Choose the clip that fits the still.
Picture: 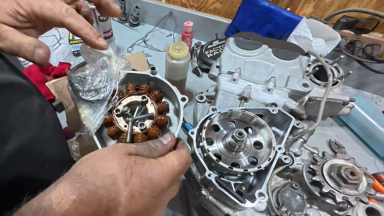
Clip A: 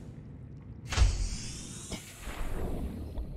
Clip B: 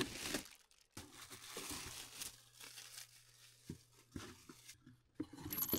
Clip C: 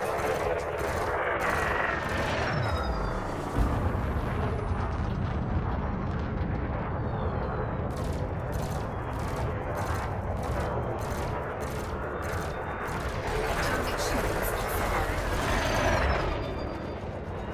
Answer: B